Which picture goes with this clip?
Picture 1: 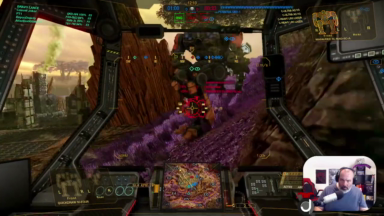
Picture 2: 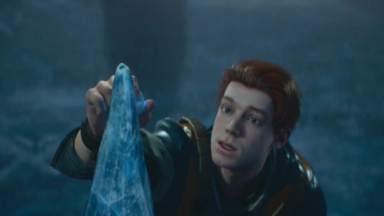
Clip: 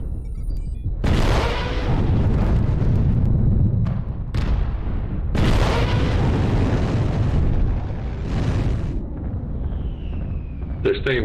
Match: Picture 1